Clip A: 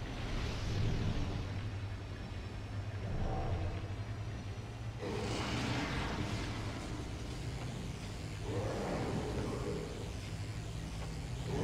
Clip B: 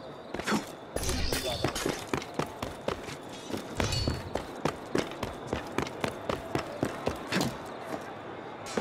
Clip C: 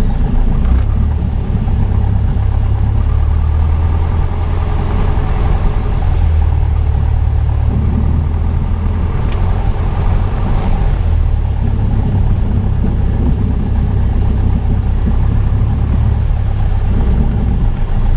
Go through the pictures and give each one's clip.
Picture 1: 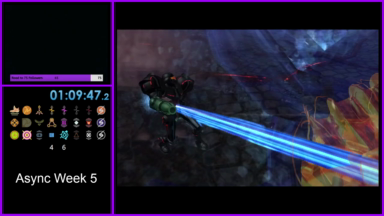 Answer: A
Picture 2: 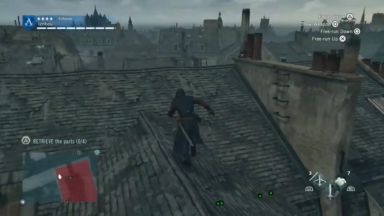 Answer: B